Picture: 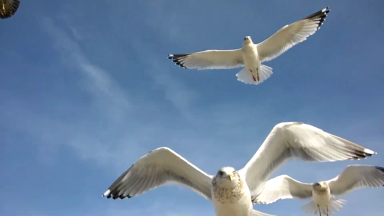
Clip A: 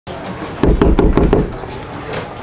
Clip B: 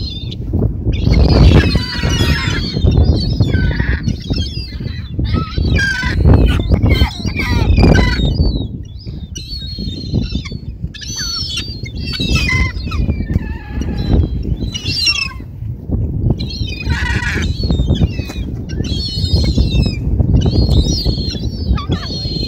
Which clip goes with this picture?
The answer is B